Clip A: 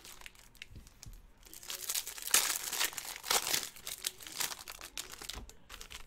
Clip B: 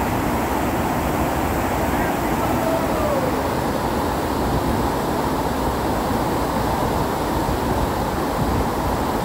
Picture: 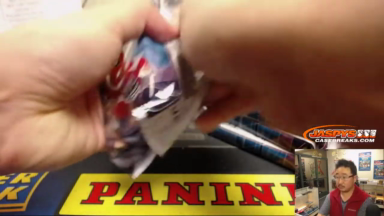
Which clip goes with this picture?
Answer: A